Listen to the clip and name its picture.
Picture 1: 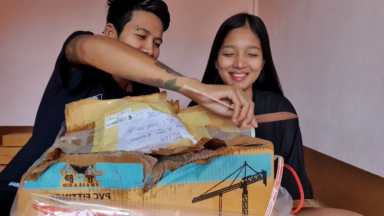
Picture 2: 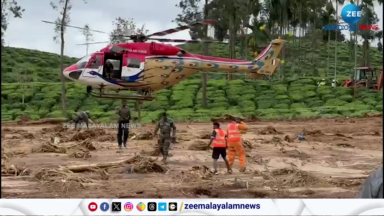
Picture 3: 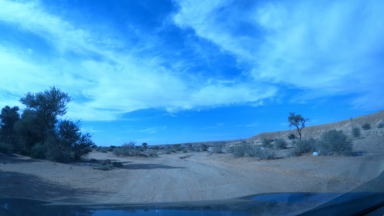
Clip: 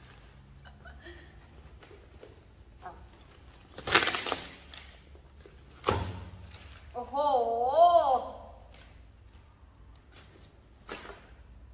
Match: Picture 1